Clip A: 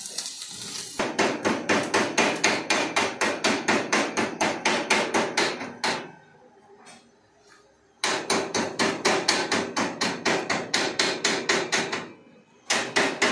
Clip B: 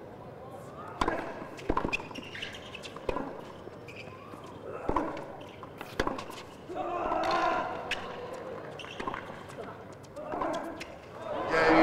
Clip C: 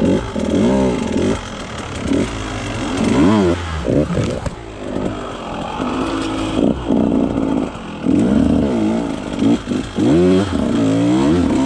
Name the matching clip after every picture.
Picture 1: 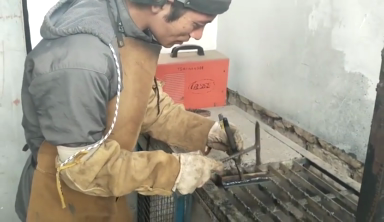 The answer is A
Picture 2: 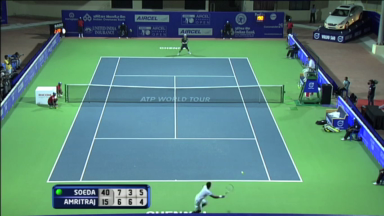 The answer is B